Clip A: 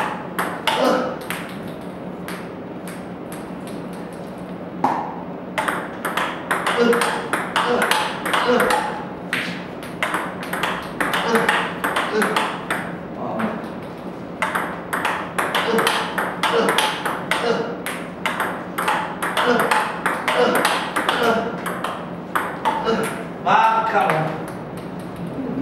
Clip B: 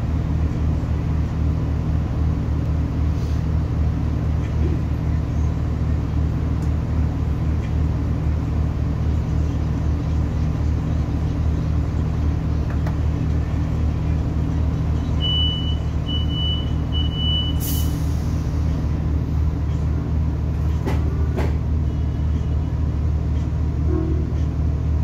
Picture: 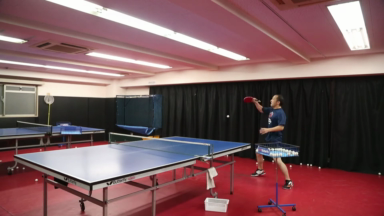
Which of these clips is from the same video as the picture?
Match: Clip A